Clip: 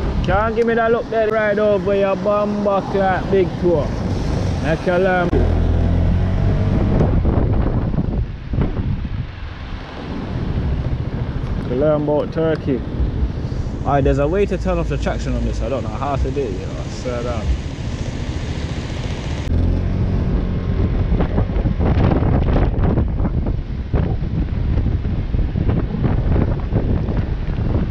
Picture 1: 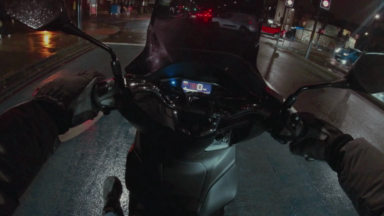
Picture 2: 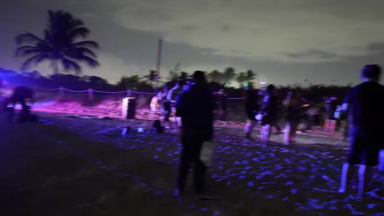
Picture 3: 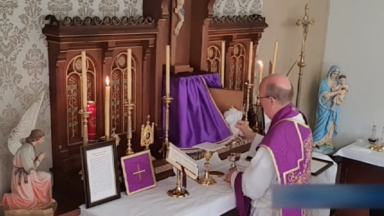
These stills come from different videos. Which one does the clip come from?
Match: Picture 1